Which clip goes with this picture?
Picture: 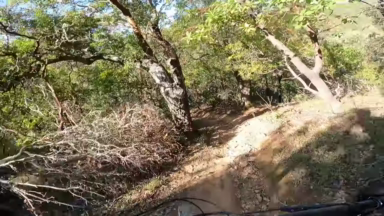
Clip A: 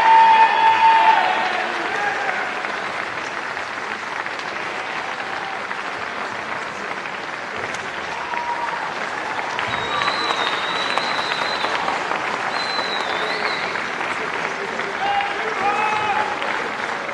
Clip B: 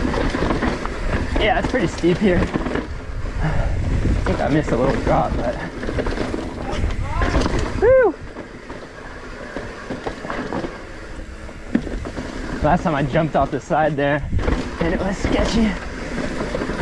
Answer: B